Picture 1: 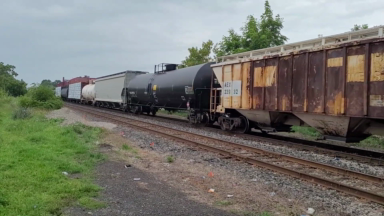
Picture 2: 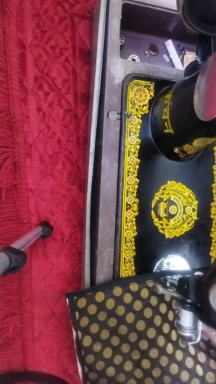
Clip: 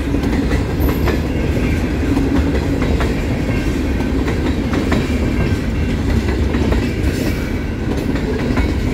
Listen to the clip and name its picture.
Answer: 1